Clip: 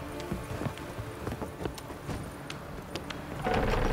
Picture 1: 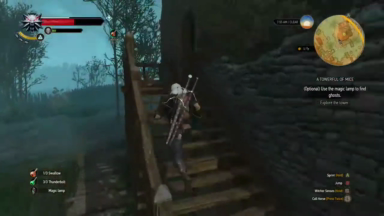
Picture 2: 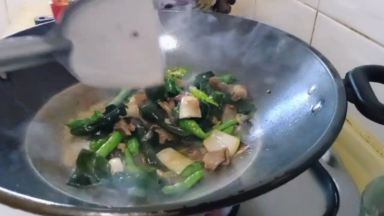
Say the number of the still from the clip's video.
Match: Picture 1